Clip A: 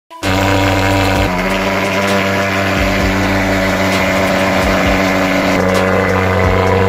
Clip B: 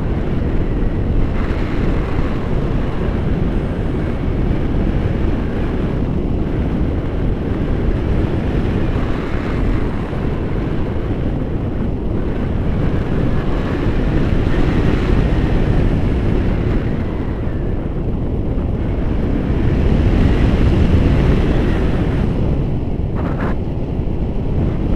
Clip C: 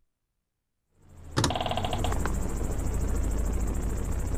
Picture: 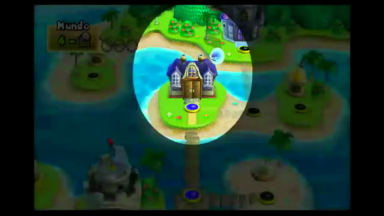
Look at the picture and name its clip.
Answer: C